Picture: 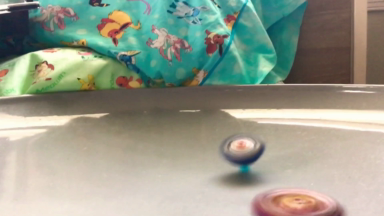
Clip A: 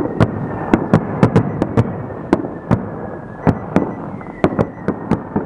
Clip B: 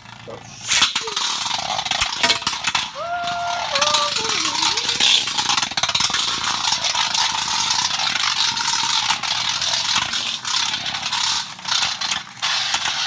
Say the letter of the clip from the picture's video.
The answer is B